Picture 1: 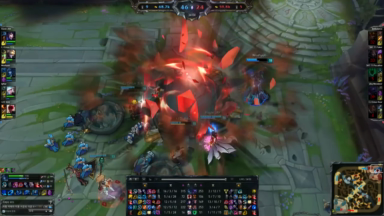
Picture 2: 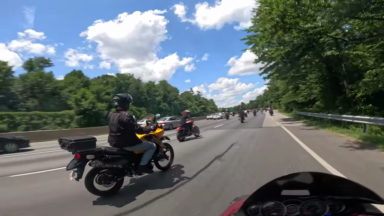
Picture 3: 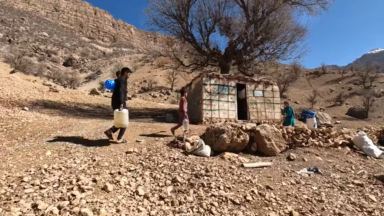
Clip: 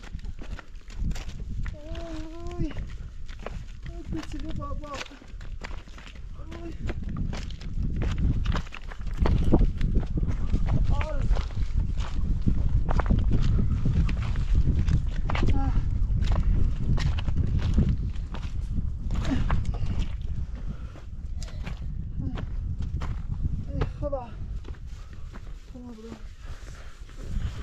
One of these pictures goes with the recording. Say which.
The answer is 3